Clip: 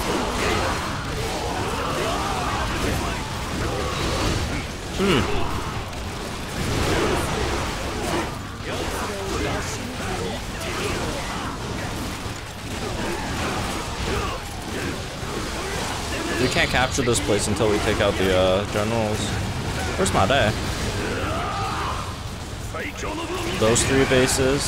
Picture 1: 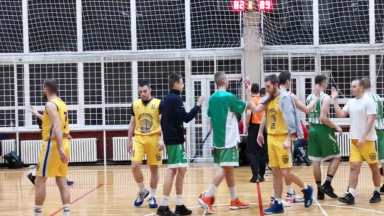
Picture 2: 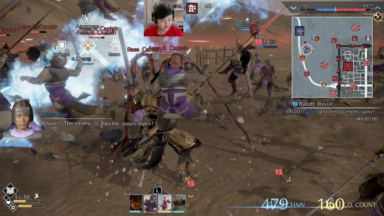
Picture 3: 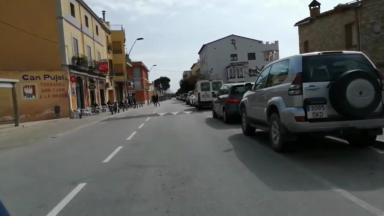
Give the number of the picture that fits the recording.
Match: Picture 2